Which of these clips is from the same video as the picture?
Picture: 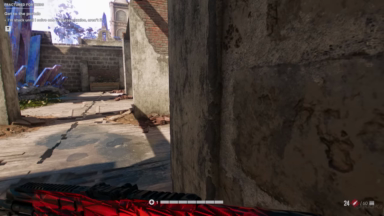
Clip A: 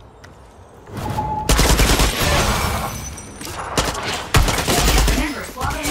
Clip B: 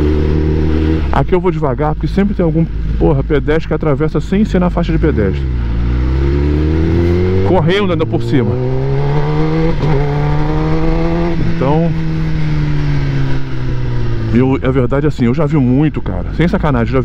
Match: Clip A